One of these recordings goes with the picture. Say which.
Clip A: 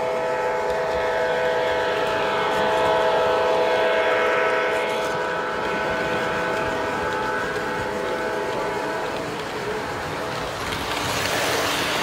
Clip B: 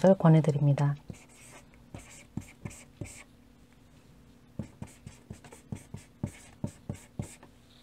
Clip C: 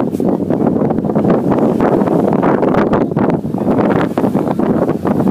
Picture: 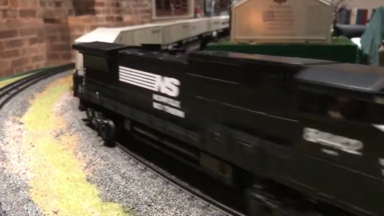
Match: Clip A